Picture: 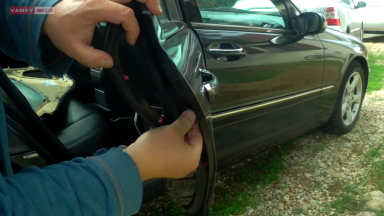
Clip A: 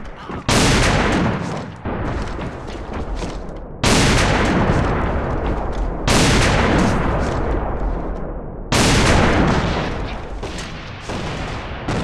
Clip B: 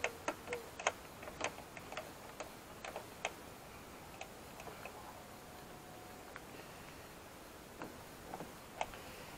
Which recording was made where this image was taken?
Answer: B